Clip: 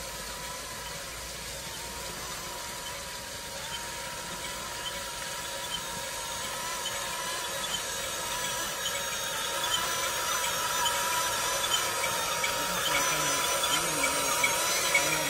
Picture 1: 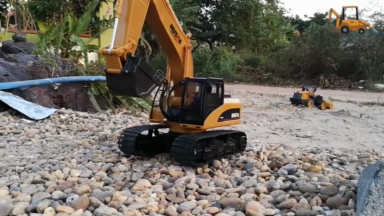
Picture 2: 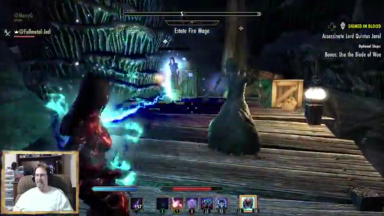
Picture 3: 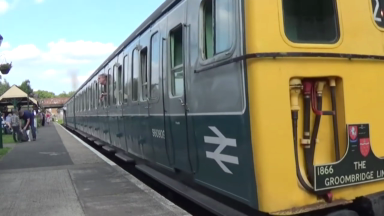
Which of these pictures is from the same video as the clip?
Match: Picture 1